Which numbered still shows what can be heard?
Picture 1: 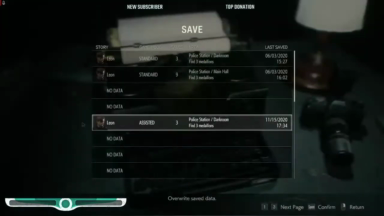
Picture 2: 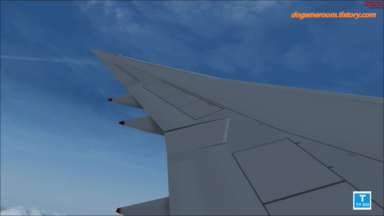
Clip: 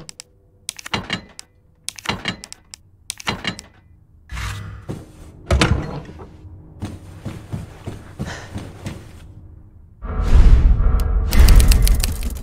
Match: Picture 1